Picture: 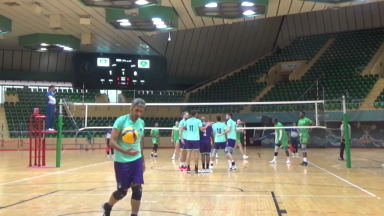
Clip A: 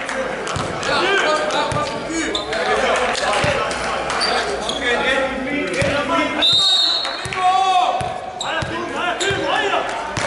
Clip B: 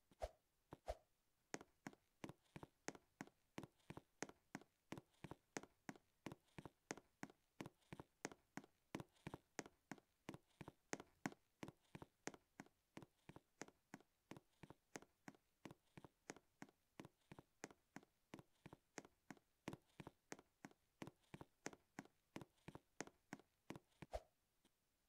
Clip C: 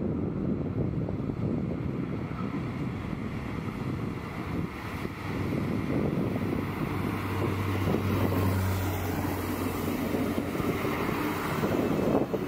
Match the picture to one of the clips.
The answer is A